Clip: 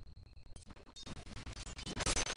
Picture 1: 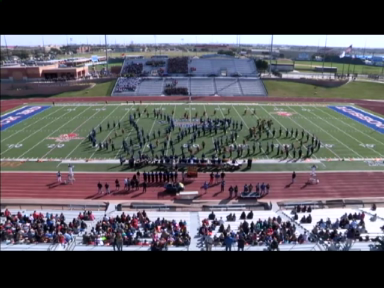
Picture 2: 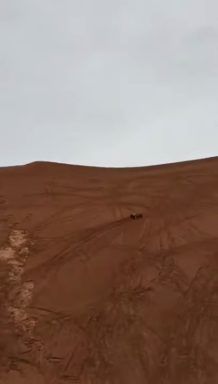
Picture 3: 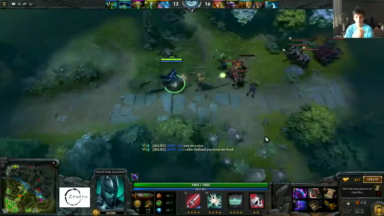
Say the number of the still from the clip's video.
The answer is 3